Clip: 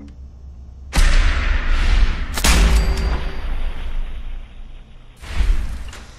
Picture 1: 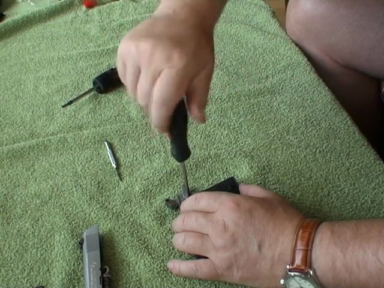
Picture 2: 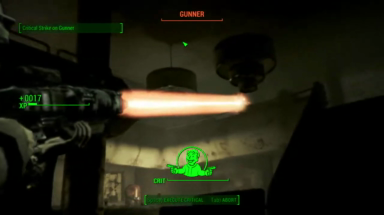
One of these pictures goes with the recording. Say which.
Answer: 2